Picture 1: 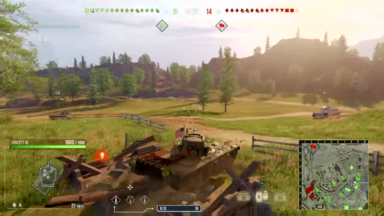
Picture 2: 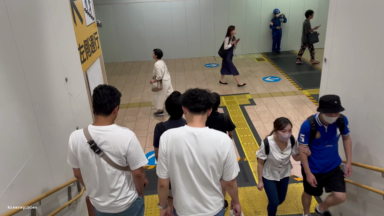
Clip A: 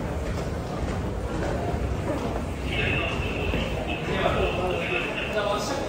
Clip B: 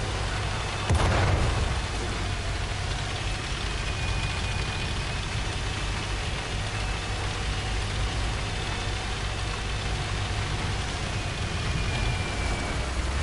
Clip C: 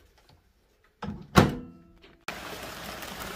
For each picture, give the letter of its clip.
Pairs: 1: B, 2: A